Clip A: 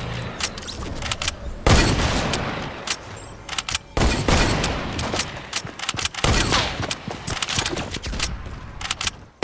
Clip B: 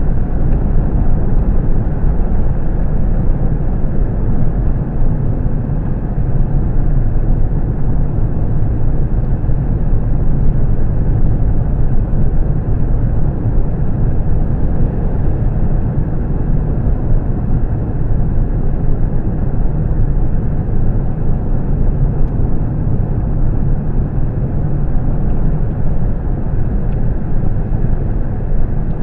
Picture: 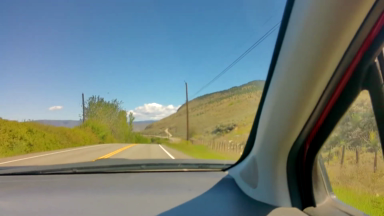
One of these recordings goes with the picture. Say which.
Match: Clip B